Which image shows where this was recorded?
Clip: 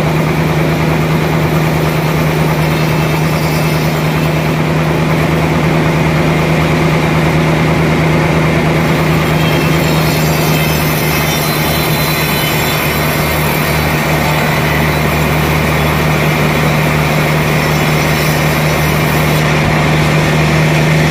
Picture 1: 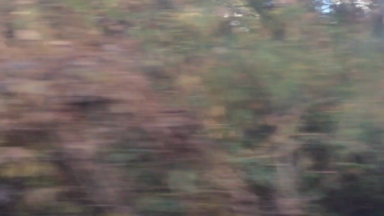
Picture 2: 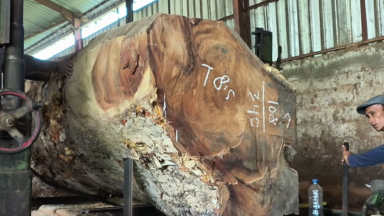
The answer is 2